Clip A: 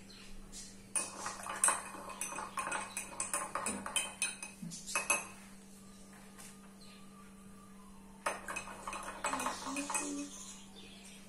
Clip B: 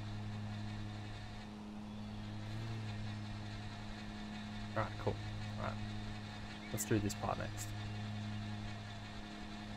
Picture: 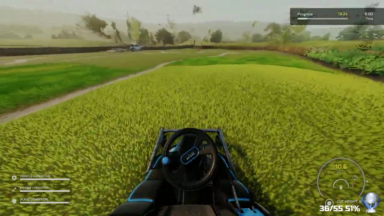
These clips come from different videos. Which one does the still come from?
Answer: B